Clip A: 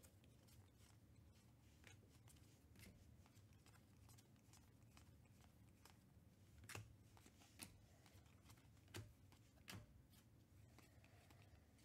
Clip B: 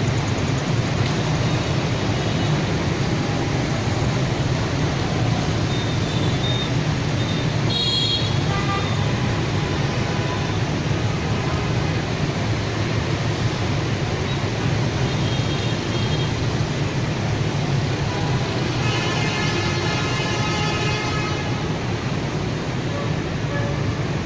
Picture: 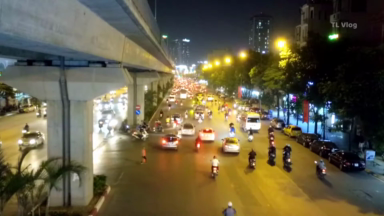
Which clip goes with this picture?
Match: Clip B